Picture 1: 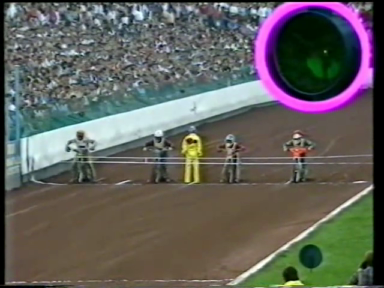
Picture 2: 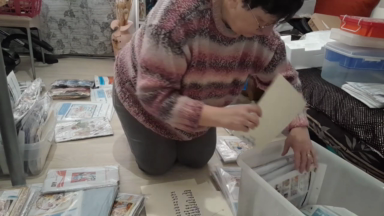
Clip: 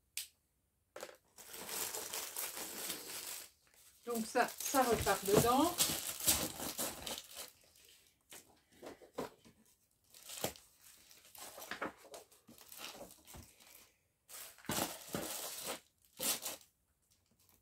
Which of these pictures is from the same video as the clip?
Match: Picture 2